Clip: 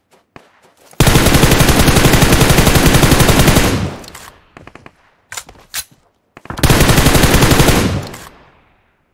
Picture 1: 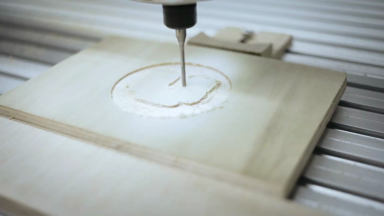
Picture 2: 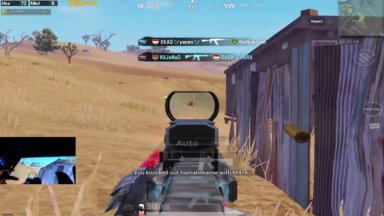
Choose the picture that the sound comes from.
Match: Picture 2